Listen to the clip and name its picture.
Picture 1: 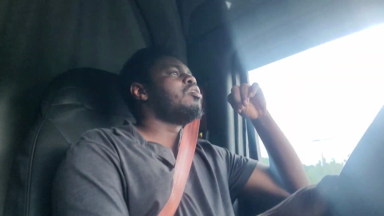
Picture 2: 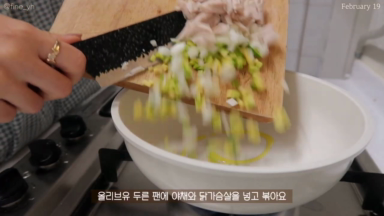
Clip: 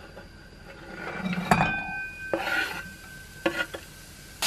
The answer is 2